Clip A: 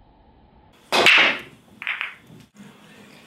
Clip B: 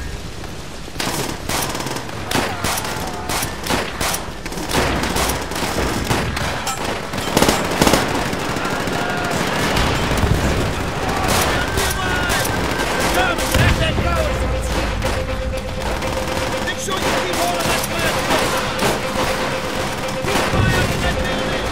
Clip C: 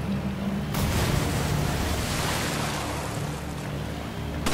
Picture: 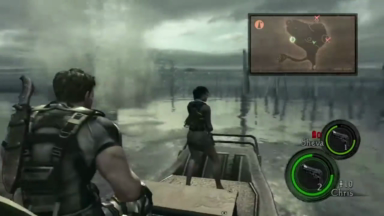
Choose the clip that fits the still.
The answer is C